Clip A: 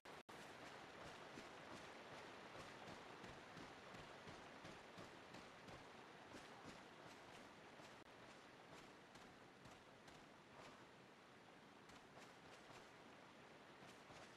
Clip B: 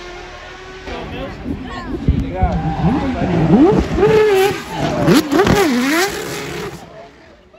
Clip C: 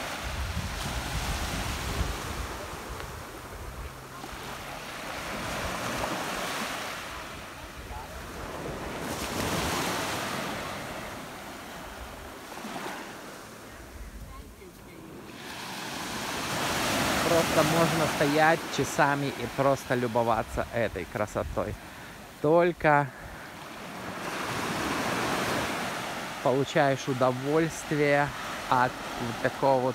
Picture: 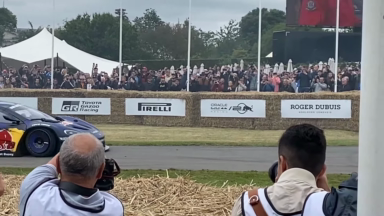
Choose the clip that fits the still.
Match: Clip B